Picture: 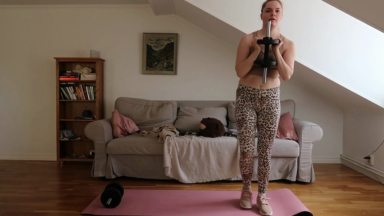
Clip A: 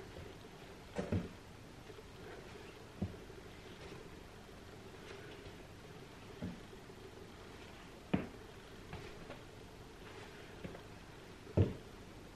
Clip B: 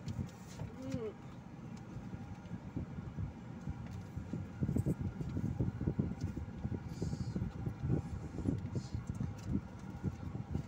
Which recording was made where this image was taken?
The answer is A